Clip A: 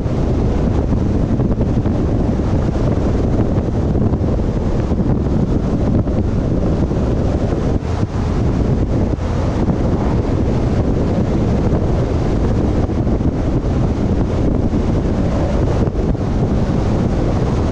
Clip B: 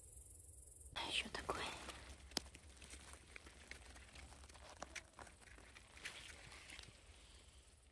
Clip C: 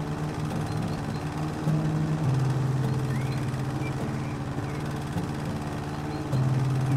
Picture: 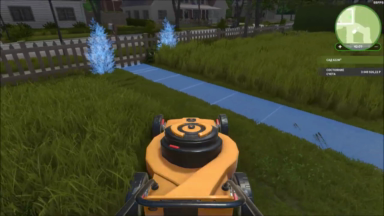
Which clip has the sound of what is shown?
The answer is C